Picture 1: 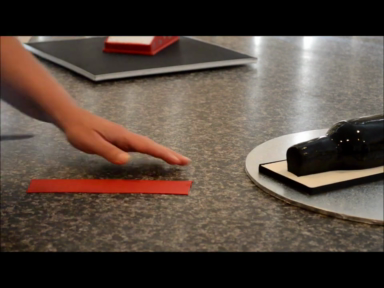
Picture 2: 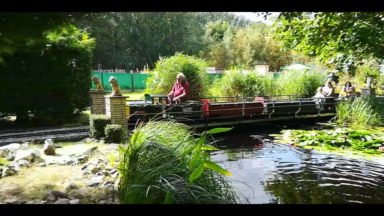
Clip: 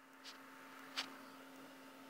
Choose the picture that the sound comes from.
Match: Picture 1